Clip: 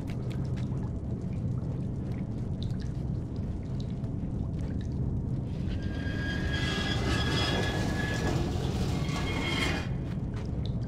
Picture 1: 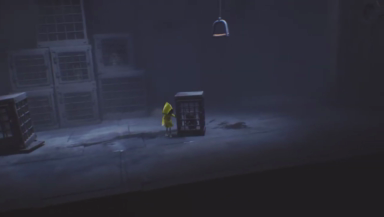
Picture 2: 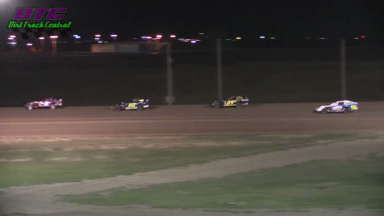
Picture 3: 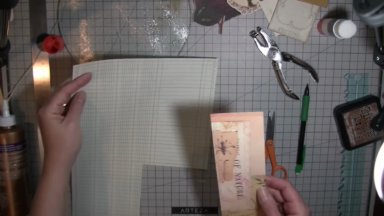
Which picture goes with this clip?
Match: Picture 1